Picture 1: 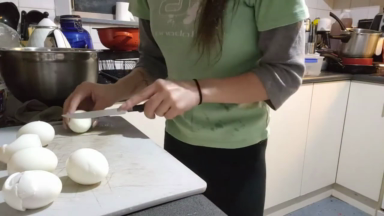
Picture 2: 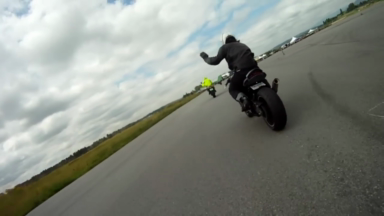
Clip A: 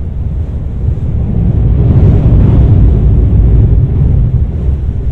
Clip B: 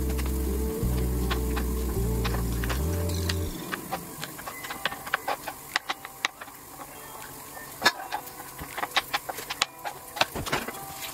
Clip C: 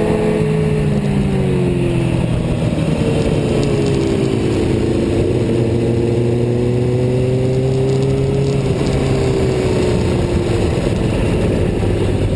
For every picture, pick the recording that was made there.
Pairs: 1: B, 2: C